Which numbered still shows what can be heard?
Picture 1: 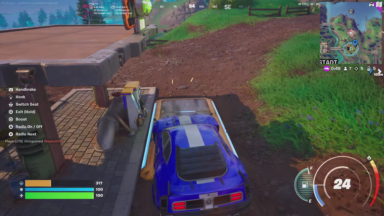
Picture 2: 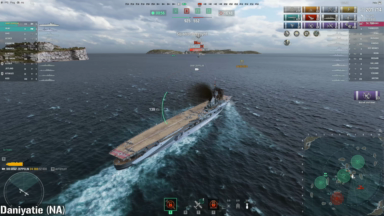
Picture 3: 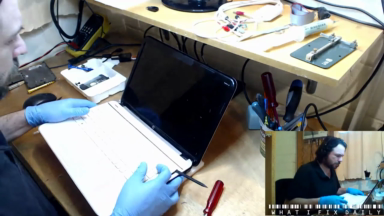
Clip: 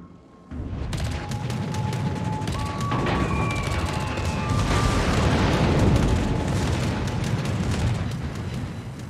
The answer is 2